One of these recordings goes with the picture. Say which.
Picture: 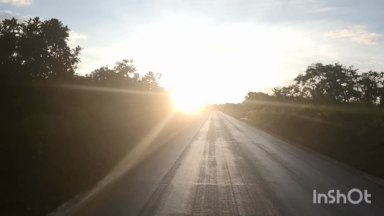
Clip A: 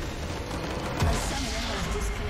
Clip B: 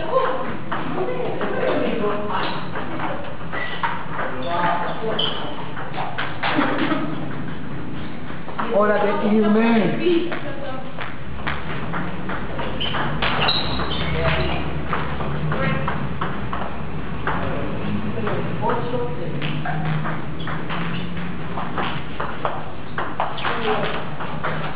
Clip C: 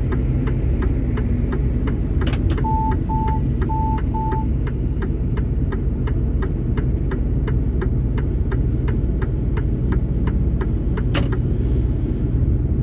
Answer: C